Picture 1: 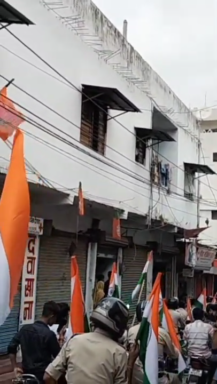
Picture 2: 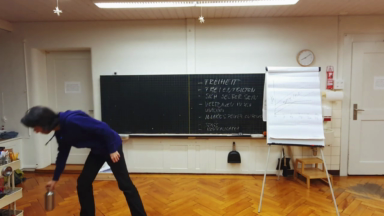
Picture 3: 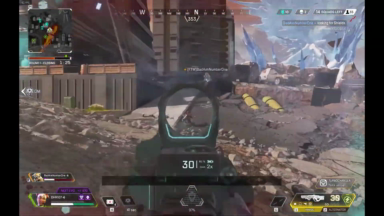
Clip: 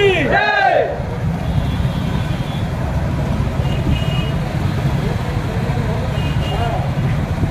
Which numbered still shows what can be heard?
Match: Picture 1